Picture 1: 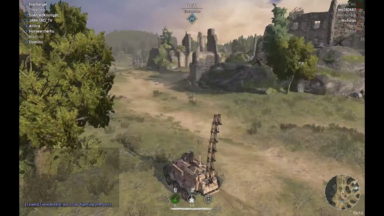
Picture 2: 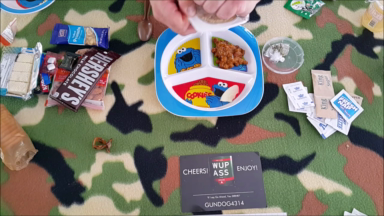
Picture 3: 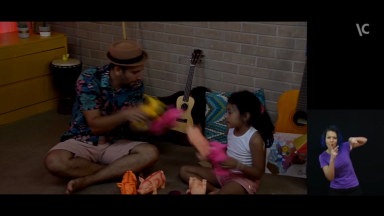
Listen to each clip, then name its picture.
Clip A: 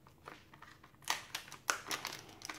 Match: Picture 2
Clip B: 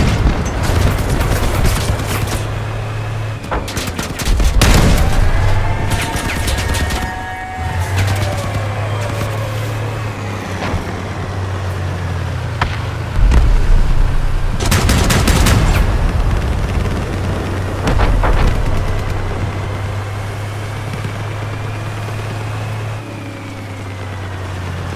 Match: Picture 1